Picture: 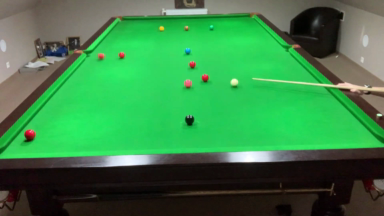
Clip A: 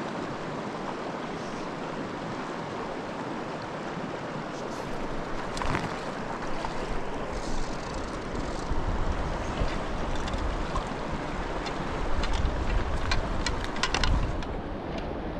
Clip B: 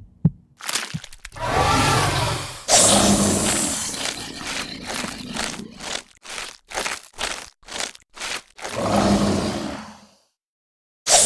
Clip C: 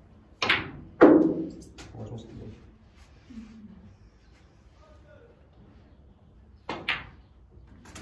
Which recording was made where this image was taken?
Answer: C